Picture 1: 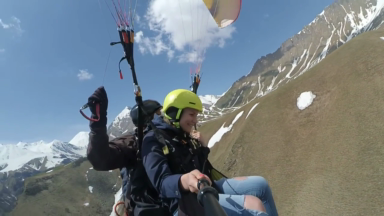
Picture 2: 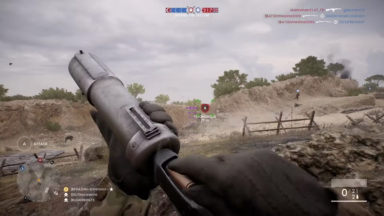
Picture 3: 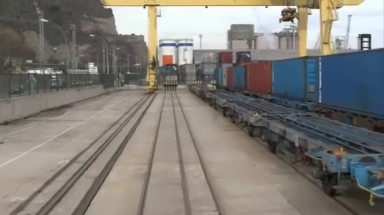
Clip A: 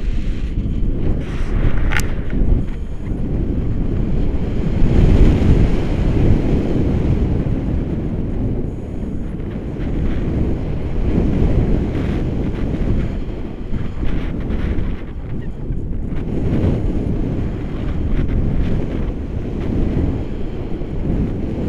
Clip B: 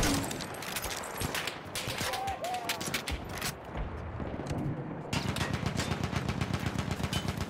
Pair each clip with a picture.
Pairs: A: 1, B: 2